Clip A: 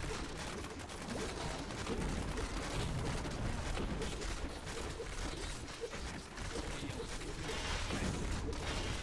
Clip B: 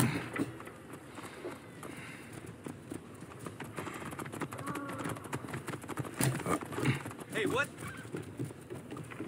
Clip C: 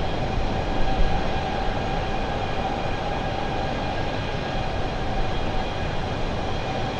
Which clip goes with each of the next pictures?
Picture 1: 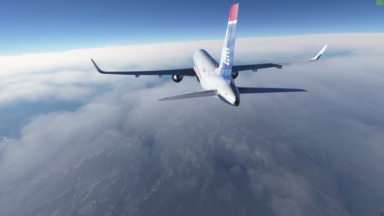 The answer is C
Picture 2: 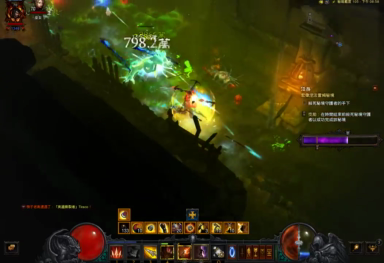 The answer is A